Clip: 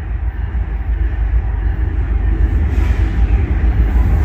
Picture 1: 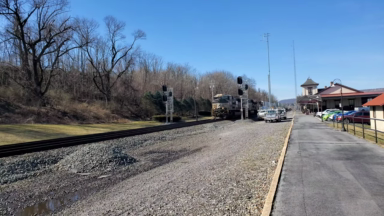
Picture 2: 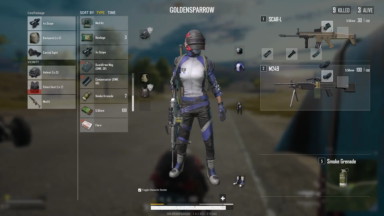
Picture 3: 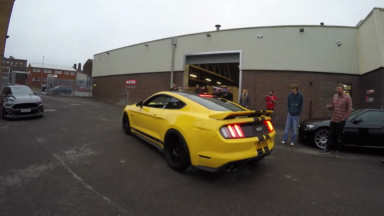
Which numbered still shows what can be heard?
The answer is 1